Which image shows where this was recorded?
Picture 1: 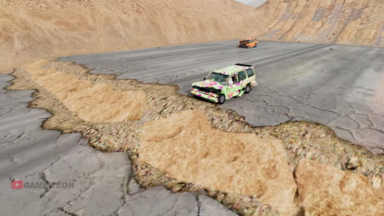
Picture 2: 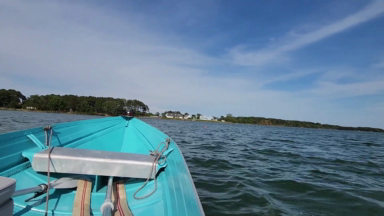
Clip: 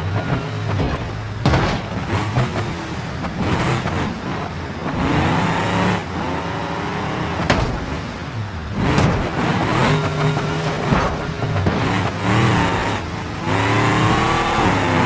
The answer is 1